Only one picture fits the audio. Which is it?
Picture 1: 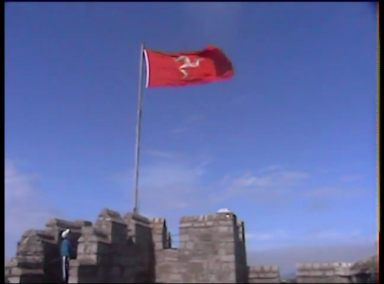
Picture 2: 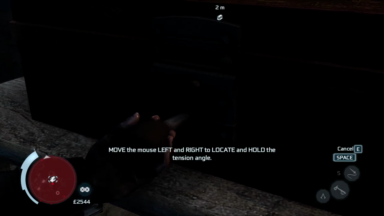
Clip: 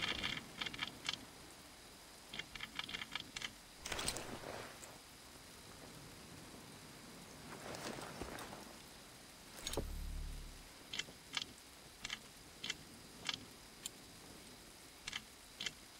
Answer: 2